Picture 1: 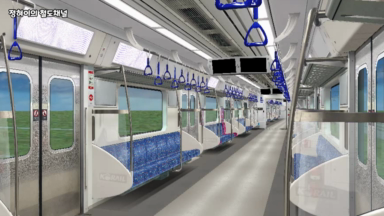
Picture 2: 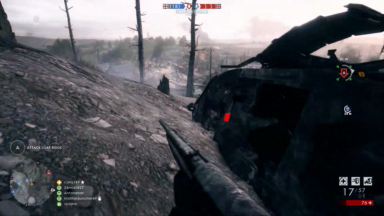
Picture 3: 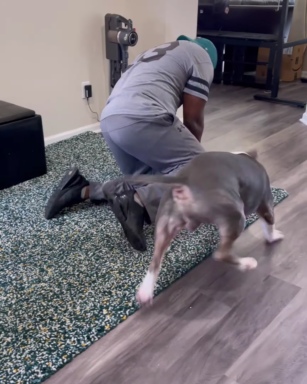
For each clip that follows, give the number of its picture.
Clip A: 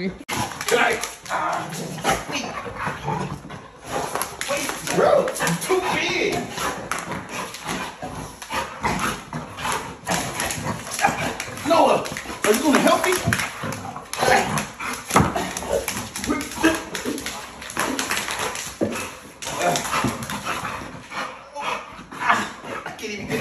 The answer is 3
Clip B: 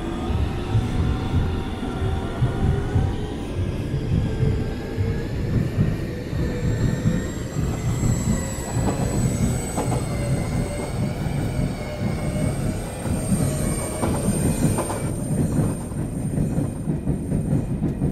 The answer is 1